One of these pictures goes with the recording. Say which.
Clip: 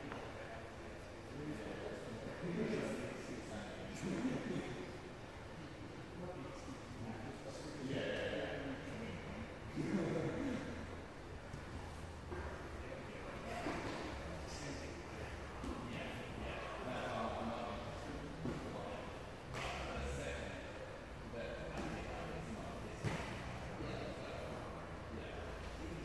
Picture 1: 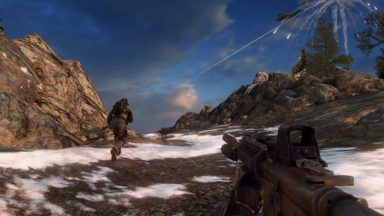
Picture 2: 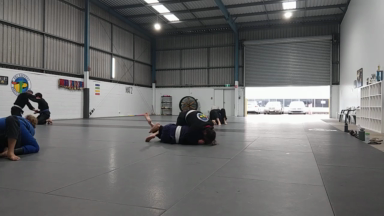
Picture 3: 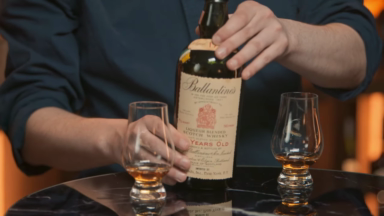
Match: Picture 2